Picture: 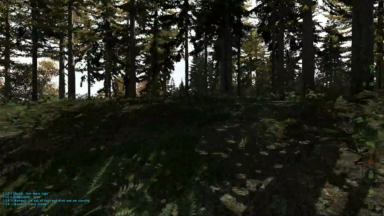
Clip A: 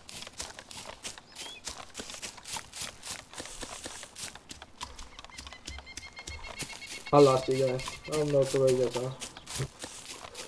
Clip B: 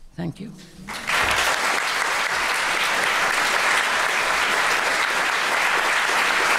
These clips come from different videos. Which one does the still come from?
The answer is A